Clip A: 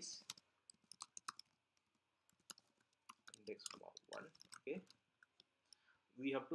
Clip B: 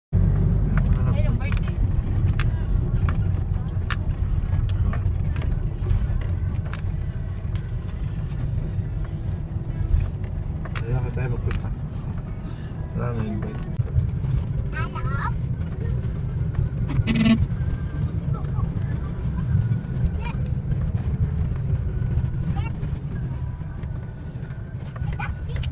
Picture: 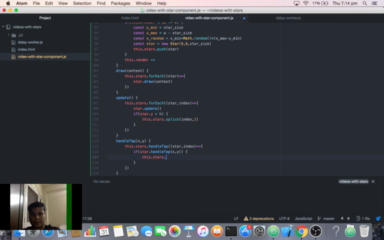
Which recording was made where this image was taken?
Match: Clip A